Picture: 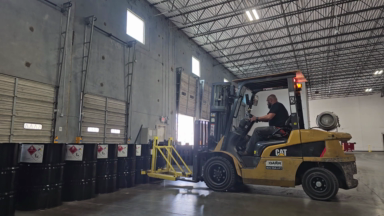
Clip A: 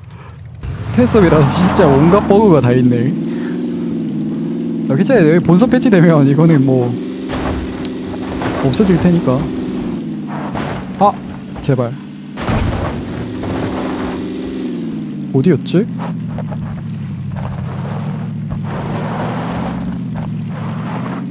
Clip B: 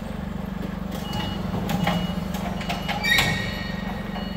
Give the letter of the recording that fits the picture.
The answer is B